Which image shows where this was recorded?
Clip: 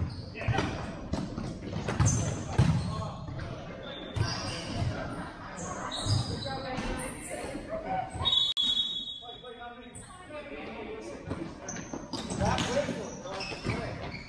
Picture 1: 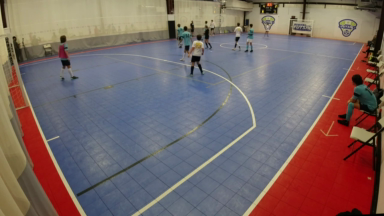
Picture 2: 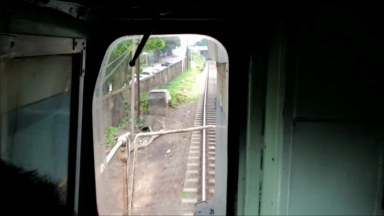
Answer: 1